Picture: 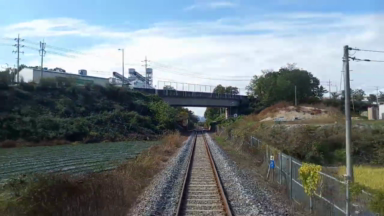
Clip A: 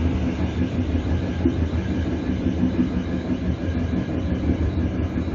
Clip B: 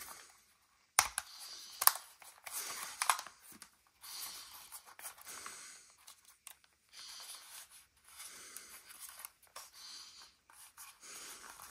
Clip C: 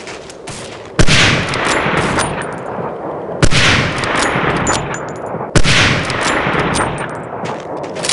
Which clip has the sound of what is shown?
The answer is A